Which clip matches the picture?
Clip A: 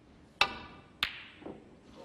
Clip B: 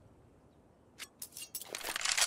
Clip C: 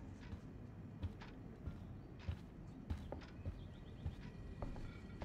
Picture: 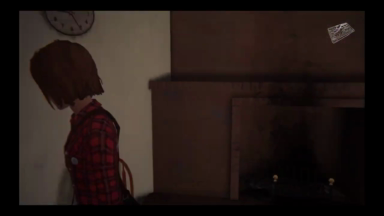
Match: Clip C